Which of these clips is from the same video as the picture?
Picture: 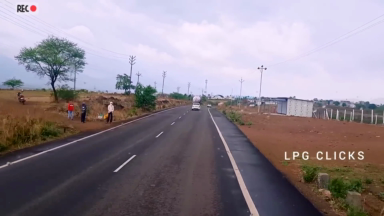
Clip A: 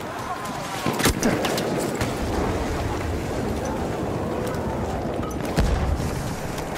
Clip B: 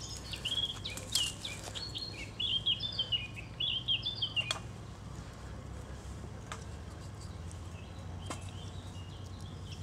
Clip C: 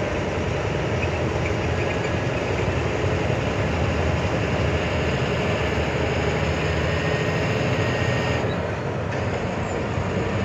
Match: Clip C